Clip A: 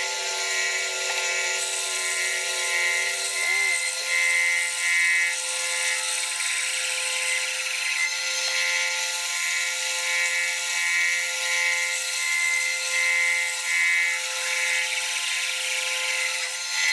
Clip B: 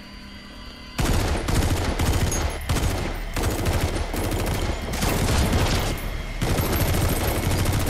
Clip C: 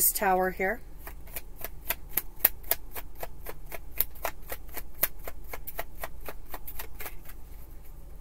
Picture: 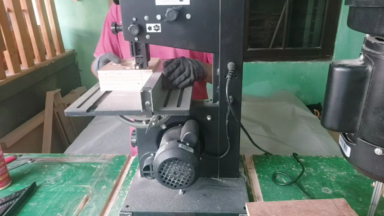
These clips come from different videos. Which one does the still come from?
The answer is A